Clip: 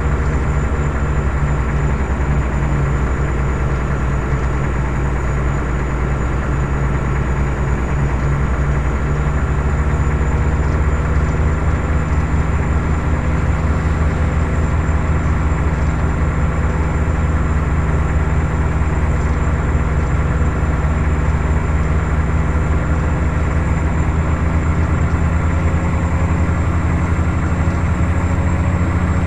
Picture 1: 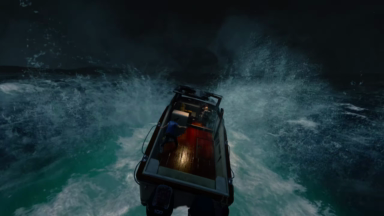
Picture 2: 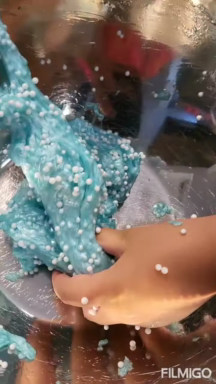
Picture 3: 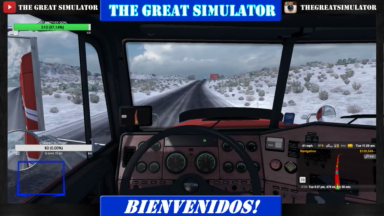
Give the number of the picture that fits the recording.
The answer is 3